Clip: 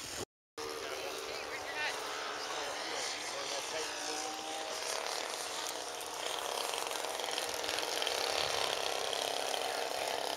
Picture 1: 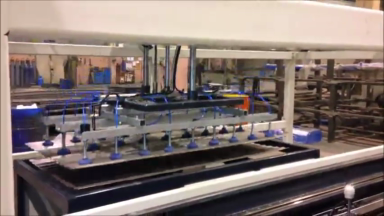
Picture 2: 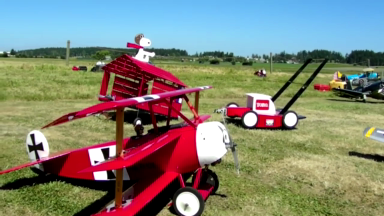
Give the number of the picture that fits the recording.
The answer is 2